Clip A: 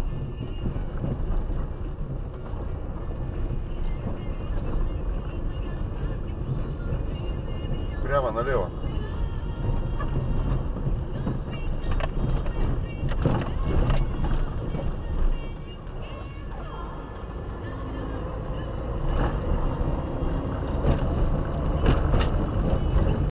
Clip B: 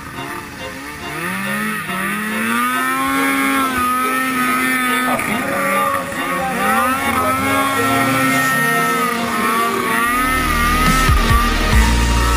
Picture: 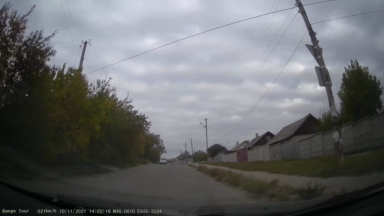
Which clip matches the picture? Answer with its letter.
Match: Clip A